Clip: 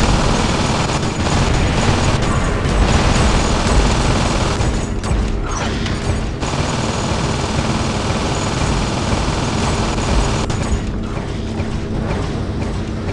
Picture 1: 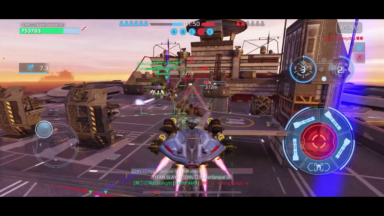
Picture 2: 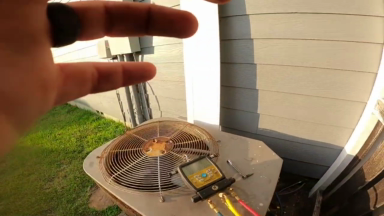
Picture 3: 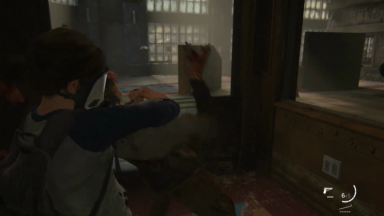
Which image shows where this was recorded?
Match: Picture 1